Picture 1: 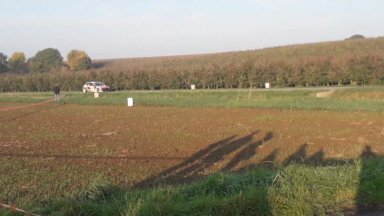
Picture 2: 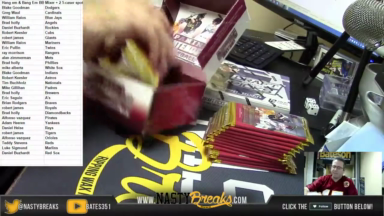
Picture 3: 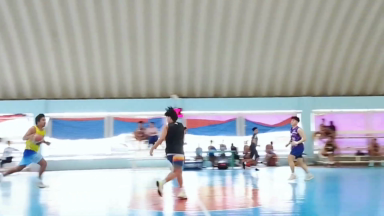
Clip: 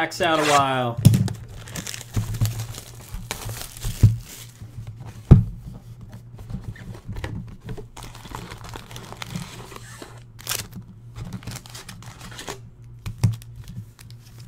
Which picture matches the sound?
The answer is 2